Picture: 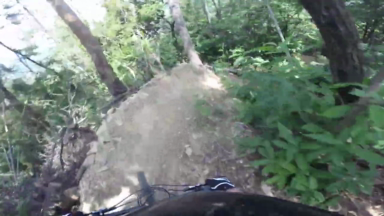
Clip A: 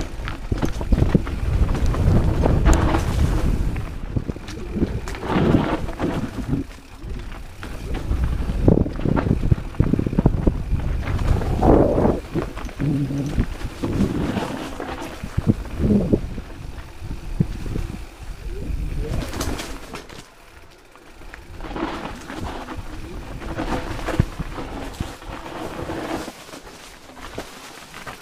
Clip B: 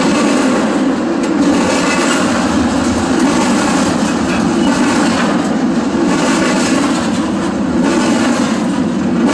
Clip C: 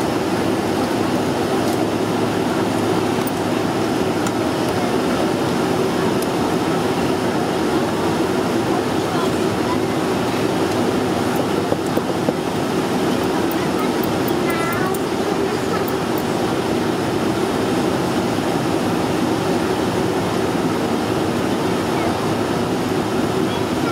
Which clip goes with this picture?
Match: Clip A